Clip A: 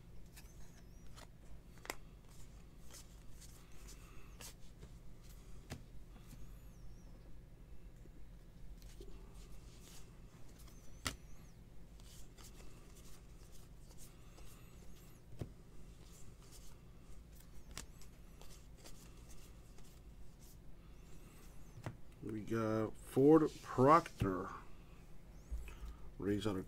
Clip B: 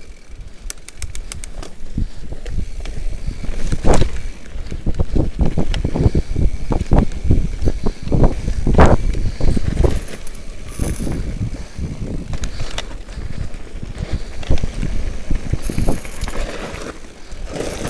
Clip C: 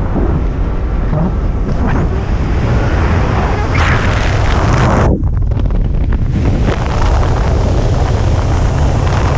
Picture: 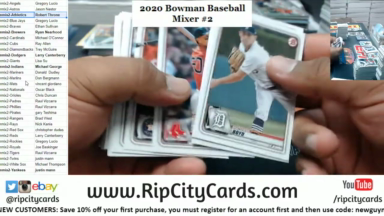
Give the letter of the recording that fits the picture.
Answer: A